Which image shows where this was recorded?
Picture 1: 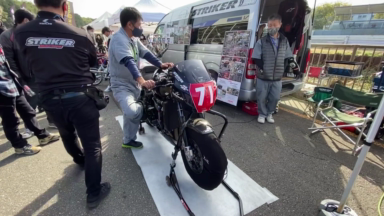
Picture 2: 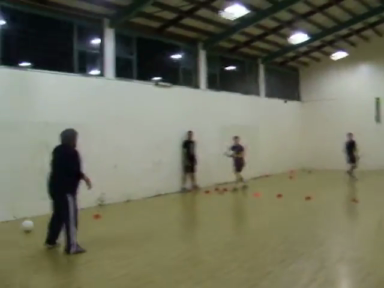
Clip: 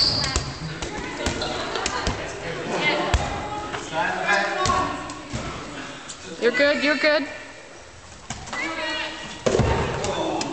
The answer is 2